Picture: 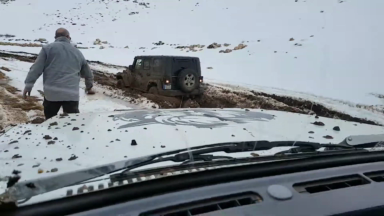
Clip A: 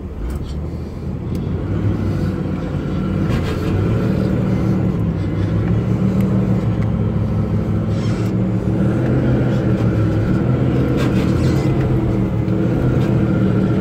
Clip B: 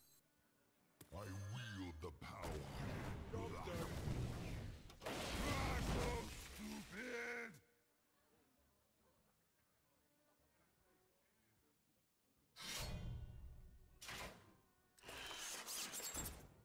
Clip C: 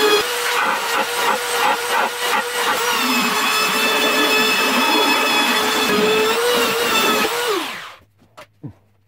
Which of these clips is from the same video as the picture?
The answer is A